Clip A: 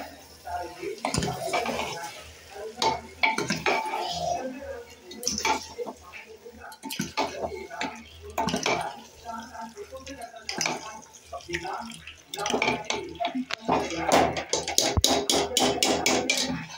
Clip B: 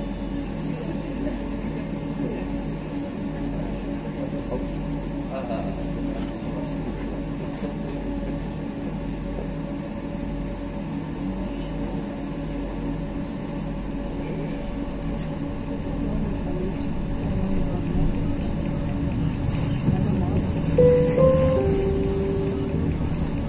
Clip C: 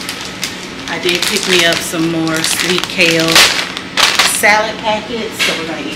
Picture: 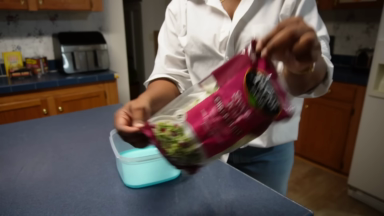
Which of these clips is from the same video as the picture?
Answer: C